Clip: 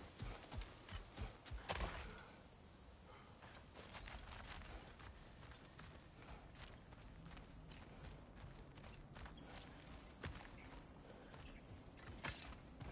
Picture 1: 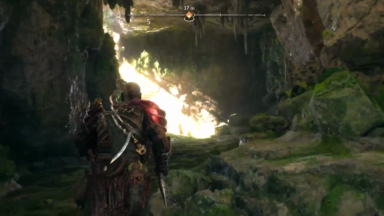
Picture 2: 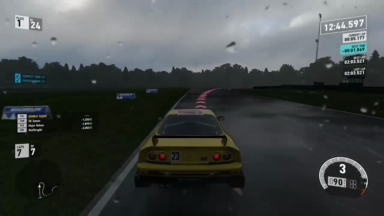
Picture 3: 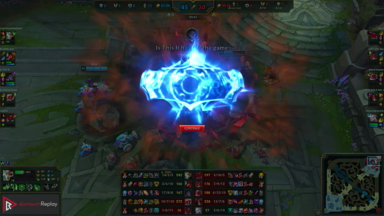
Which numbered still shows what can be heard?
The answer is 1